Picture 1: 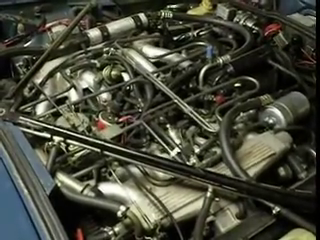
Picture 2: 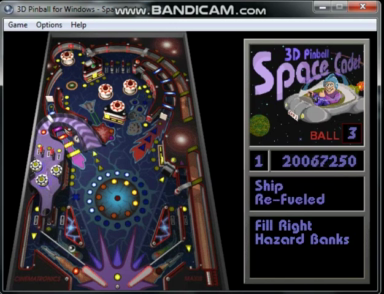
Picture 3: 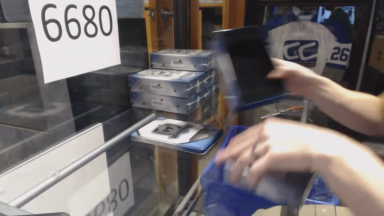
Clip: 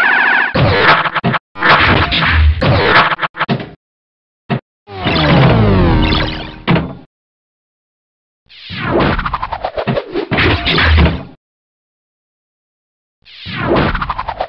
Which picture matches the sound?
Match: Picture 2